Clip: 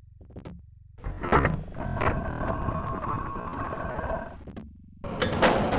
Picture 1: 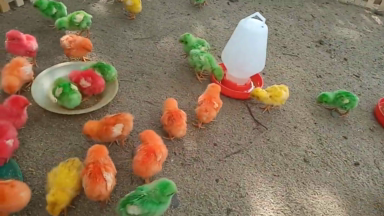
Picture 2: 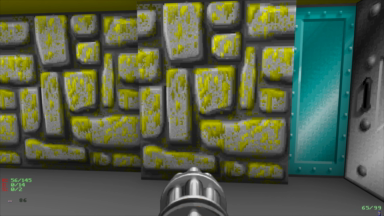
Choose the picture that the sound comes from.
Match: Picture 2